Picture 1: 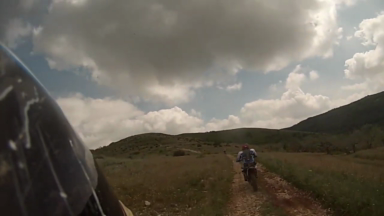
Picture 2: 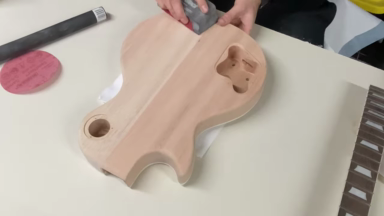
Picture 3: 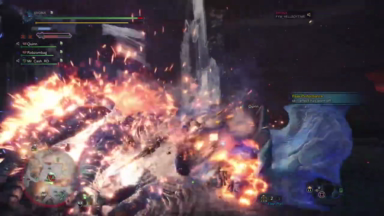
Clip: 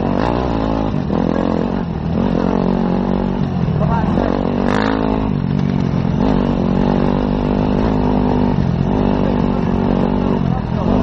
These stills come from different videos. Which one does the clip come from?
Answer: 1